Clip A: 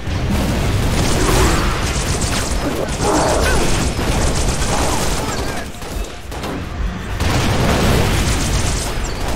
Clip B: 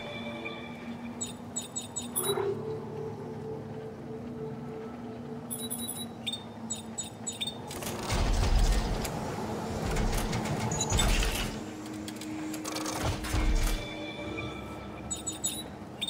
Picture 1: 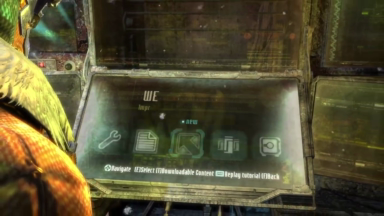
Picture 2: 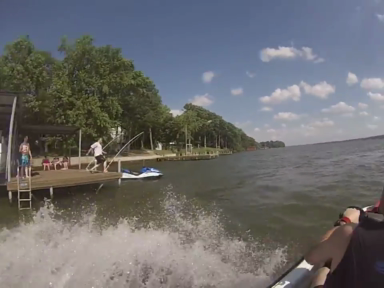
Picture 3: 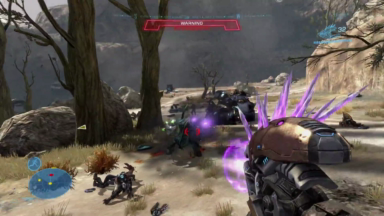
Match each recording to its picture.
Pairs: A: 3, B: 1